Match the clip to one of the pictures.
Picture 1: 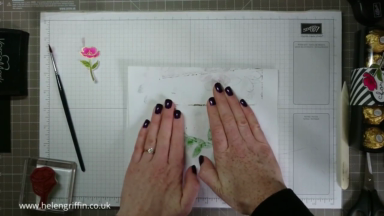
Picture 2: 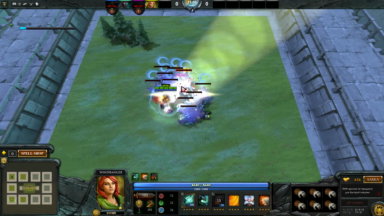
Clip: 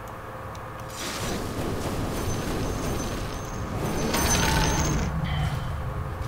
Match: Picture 2